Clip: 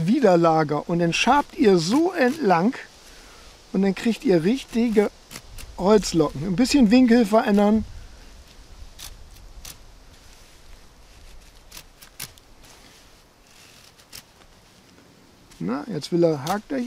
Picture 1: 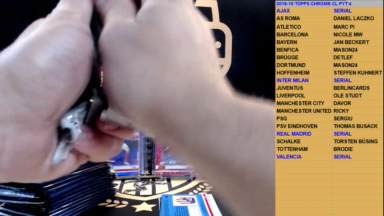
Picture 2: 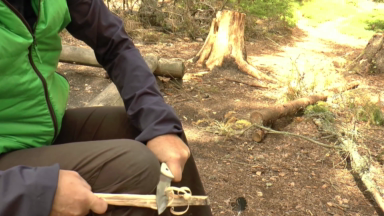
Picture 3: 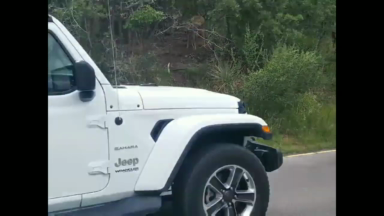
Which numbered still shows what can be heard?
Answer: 2